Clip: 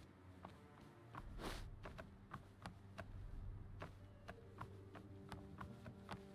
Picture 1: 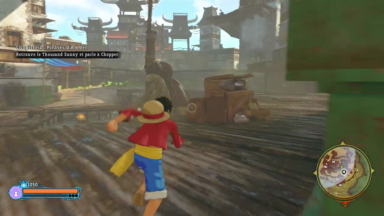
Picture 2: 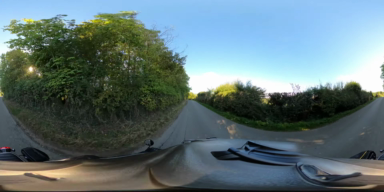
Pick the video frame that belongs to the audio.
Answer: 1